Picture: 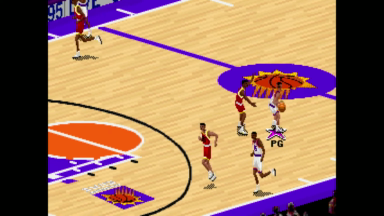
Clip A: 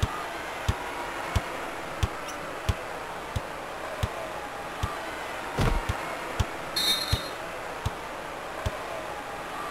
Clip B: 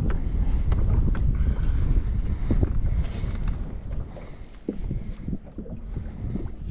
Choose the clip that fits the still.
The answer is A